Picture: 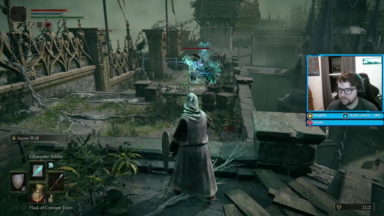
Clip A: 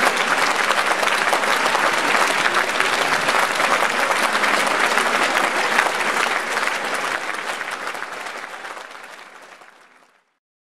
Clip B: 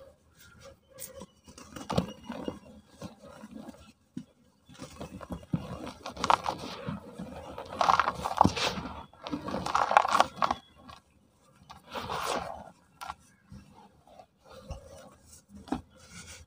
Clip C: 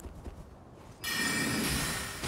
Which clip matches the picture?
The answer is C